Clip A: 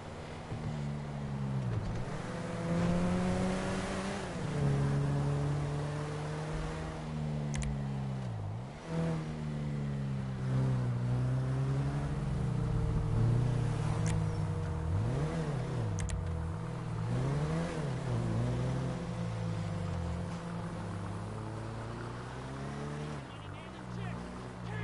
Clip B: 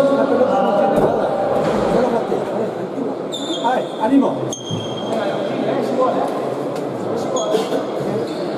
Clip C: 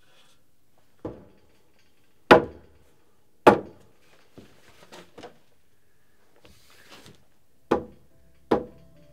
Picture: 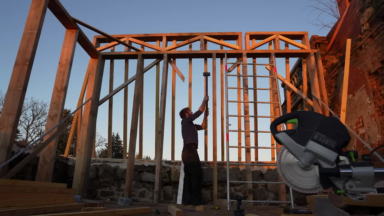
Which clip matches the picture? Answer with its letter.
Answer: C